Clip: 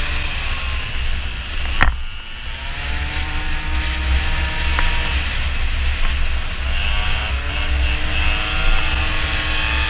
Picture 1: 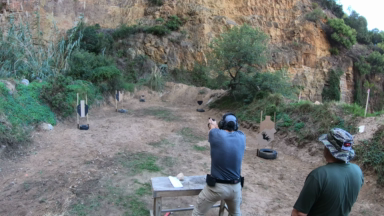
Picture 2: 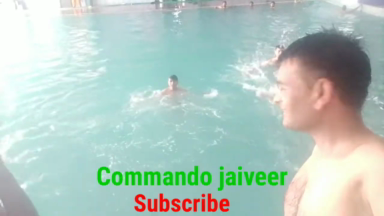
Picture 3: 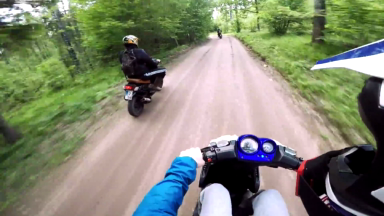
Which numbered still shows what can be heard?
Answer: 3